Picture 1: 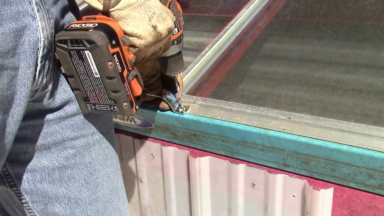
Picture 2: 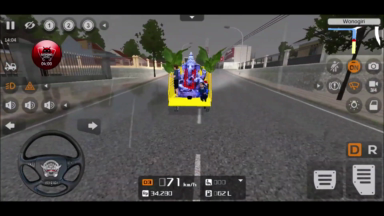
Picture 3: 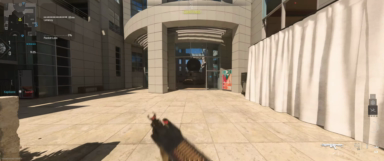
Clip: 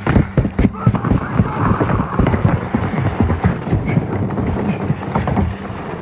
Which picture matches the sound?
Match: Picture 3